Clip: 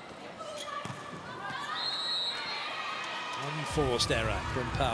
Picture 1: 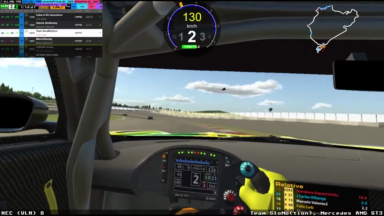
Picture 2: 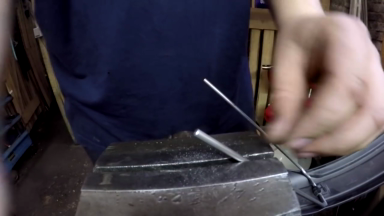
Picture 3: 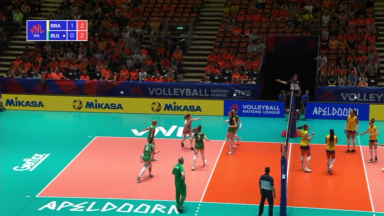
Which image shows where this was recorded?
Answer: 3